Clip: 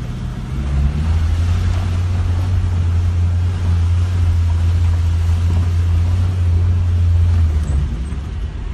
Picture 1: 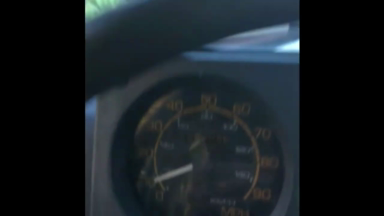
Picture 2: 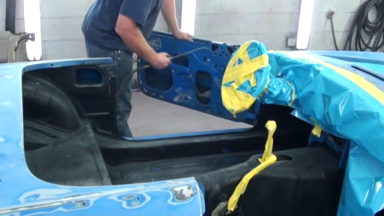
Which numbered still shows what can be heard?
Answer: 1